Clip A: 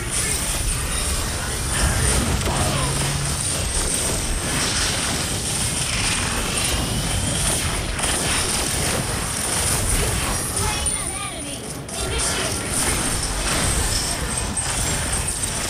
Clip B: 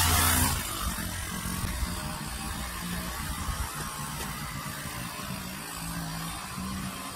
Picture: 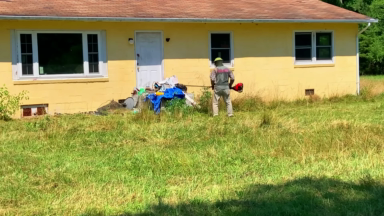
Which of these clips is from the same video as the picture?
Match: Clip B